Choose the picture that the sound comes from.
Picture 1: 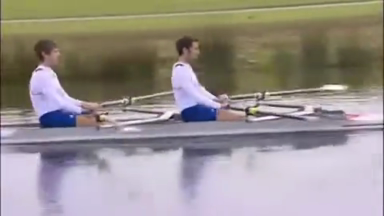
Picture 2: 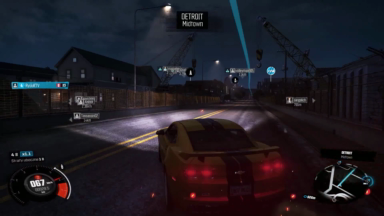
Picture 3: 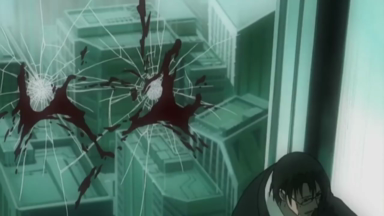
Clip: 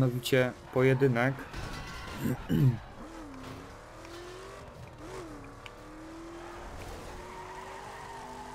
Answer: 2